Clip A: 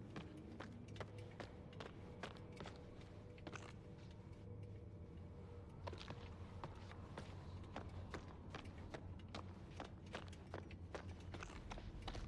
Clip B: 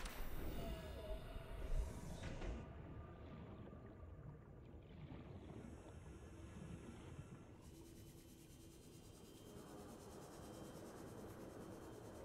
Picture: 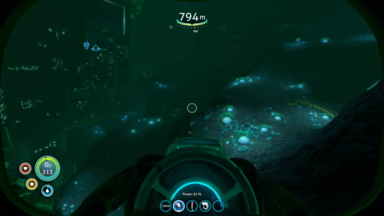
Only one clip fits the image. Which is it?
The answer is B